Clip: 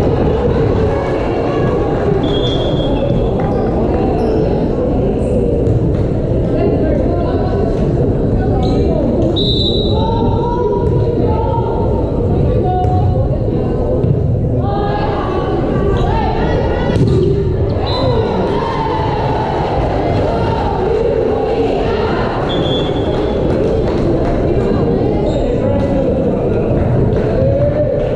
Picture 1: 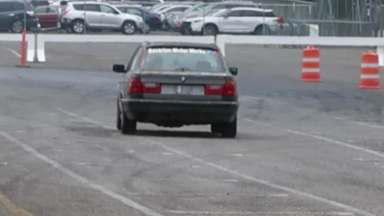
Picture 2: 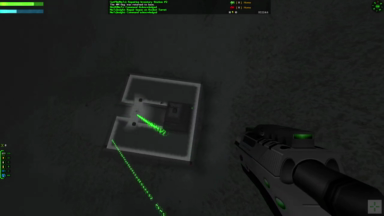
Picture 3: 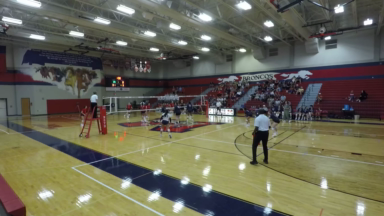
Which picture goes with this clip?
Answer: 3